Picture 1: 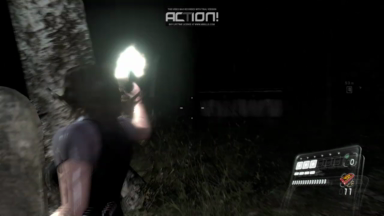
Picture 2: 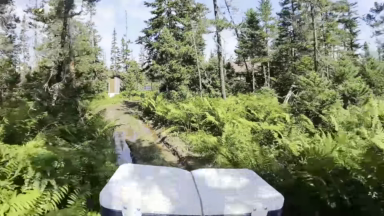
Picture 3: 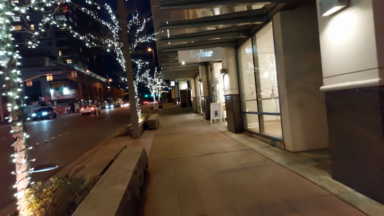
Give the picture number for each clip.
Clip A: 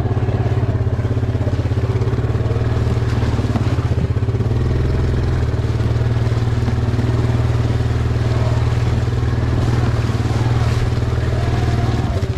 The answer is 2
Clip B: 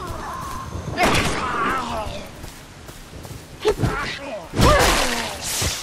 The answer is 1